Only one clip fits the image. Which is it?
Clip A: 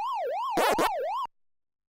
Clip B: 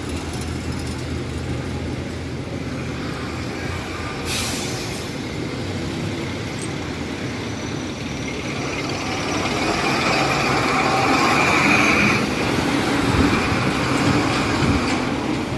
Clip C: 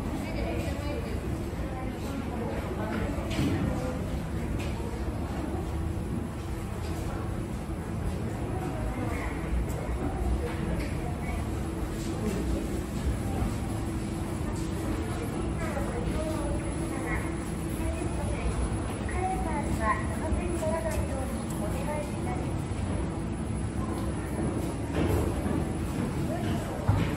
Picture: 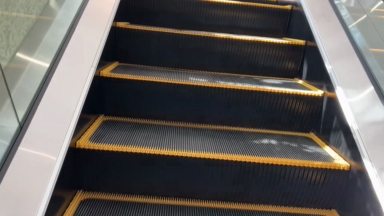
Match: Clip C